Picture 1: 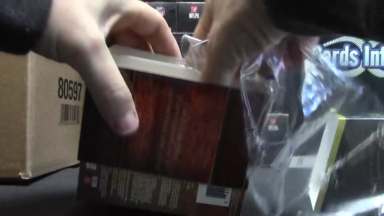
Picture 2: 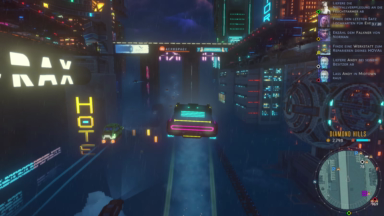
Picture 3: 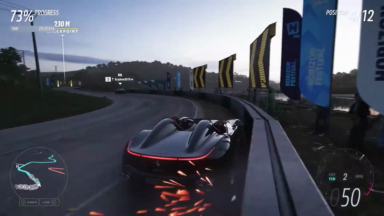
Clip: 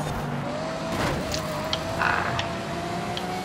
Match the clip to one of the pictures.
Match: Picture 3